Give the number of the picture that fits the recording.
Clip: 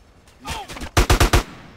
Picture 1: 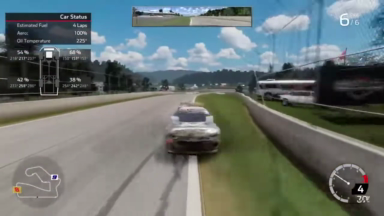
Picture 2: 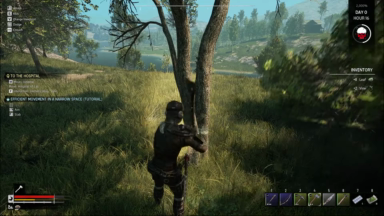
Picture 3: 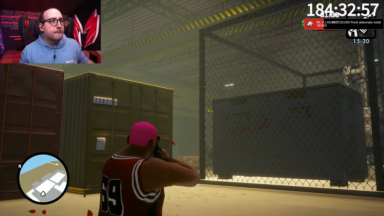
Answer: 3